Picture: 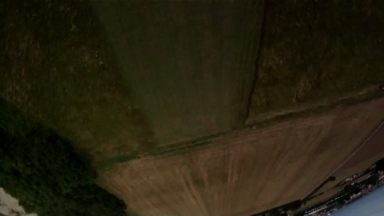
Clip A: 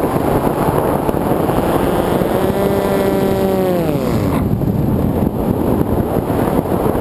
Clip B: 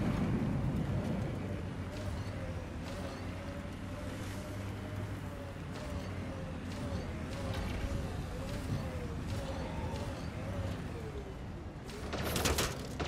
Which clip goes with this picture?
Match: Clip A